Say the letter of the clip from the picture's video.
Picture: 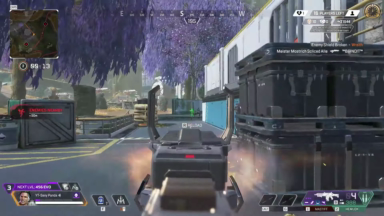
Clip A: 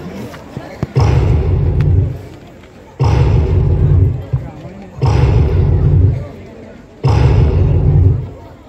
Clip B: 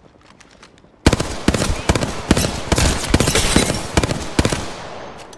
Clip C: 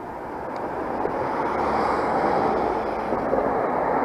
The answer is B